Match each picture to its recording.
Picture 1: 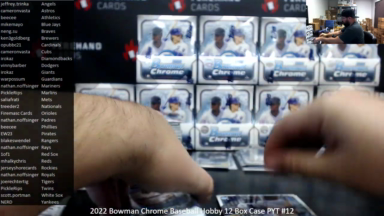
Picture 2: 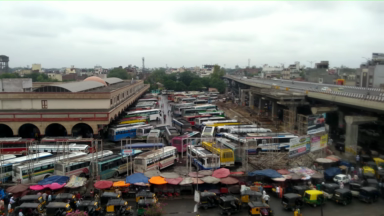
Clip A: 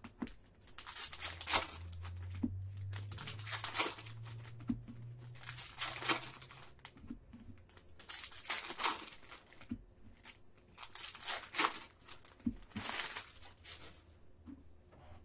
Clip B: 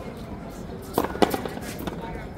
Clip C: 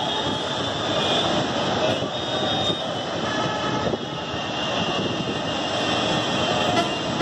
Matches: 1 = A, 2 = C